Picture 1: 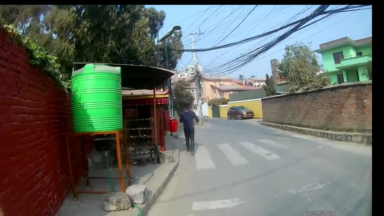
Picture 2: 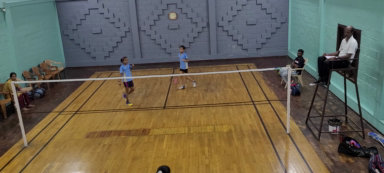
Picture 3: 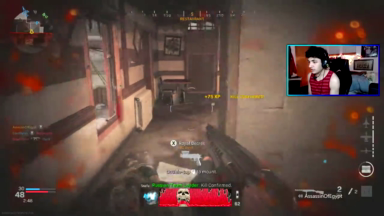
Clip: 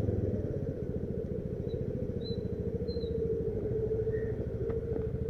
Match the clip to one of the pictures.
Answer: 1